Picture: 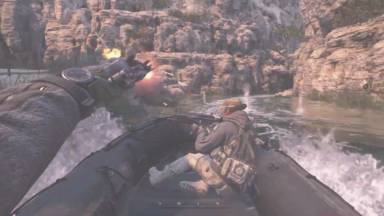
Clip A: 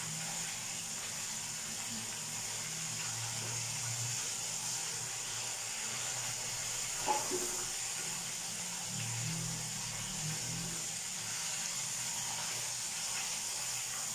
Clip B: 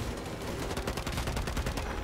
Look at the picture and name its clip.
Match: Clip B